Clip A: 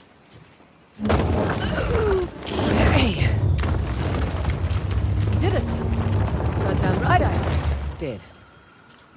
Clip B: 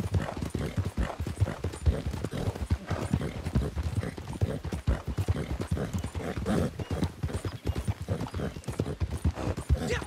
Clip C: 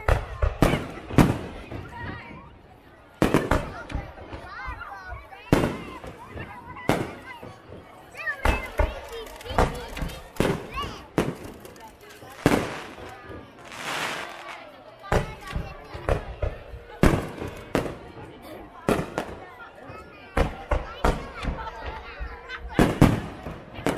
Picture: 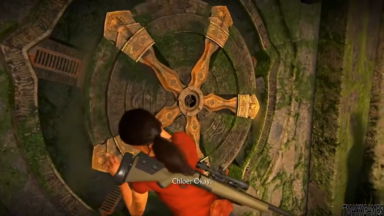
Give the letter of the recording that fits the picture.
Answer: A